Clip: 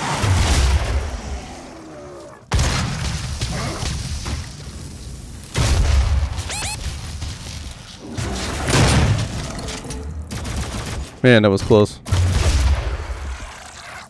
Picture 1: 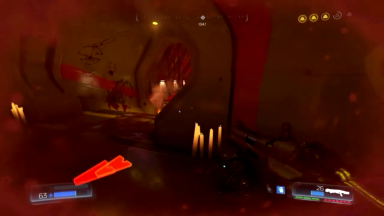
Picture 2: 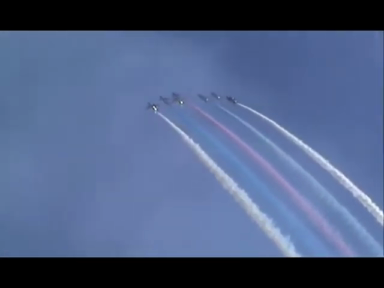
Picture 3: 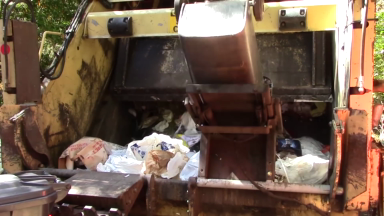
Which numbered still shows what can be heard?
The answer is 1